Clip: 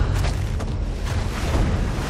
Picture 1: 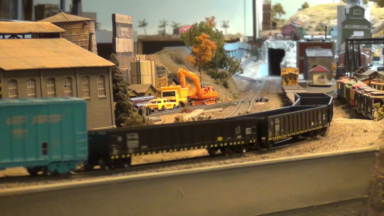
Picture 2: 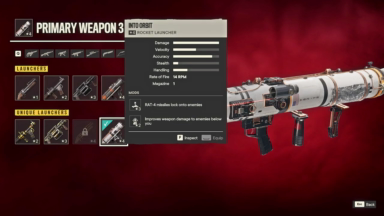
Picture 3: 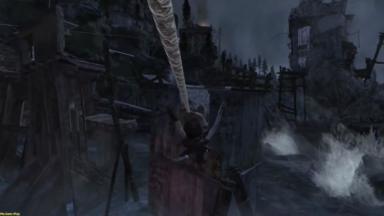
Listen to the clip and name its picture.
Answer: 3